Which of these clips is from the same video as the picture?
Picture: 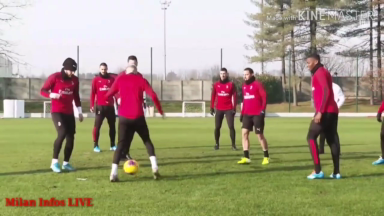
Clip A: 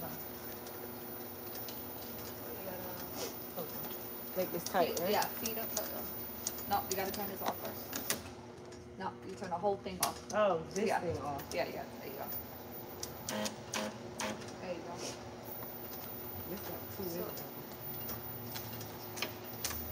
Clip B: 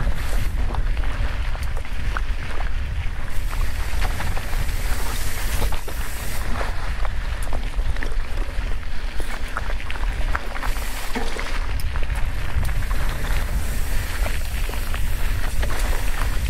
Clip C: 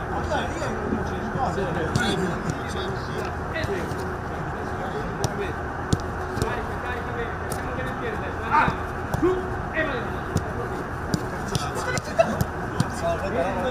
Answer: C